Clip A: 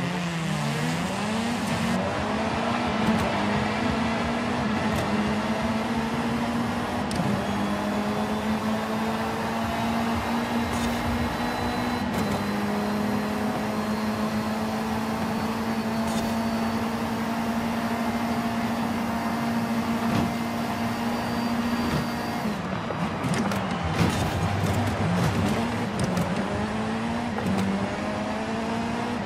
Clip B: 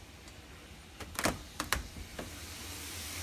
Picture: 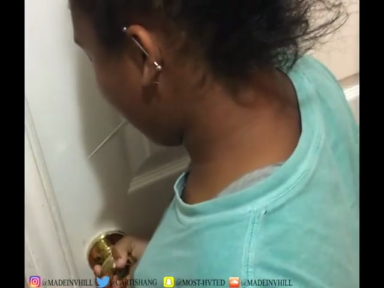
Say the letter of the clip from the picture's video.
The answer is B